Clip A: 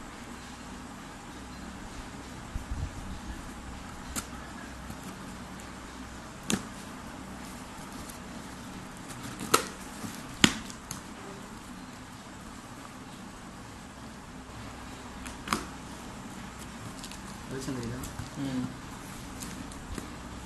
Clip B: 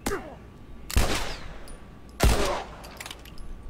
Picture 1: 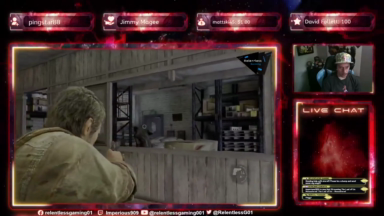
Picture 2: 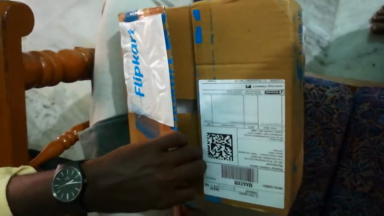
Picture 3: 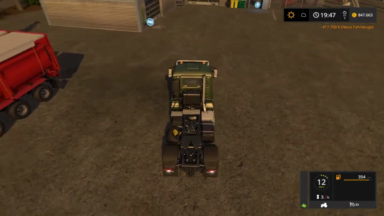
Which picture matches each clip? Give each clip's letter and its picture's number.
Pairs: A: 2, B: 1